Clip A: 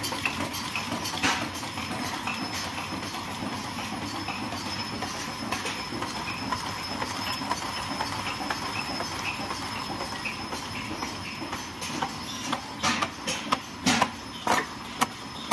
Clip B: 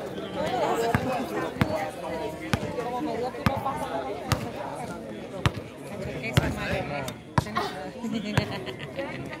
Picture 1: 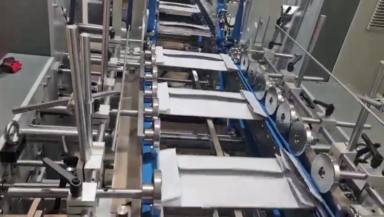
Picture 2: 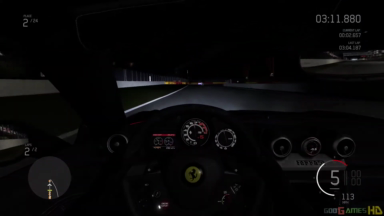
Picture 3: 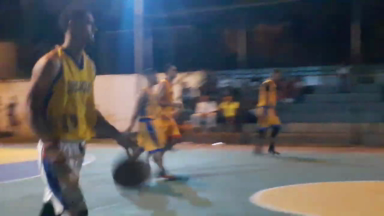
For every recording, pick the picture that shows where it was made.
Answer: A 1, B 3